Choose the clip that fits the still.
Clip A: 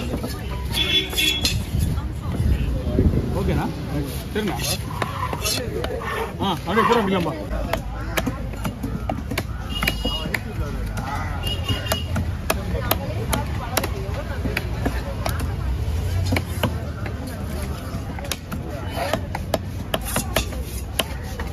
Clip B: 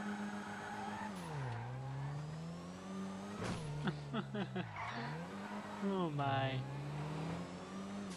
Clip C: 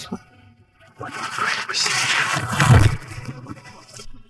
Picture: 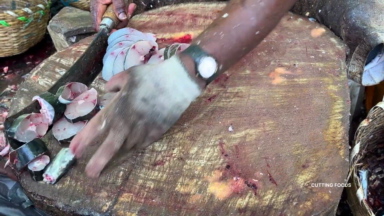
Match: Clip A